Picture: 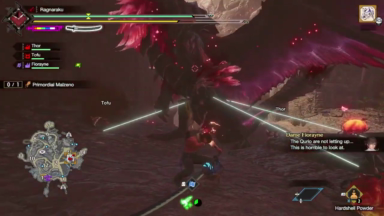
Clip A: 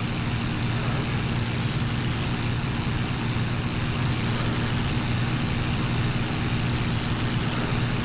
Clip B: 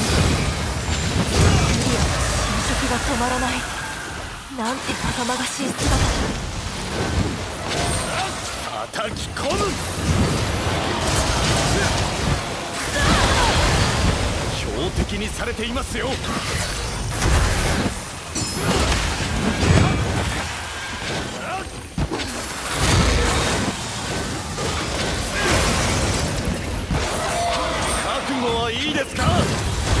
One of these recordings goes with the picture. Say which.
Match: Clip B